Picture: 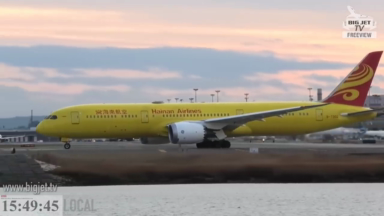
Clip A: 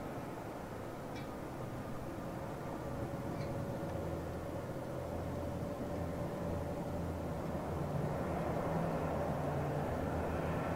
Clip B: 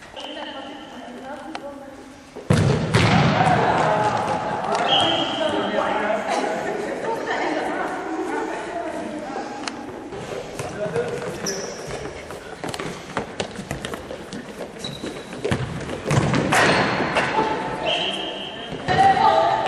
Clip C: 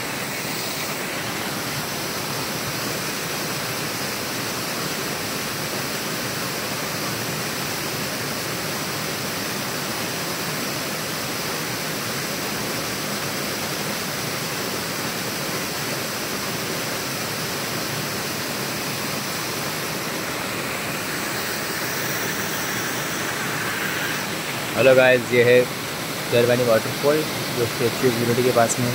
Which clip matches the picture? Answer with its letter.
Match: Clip A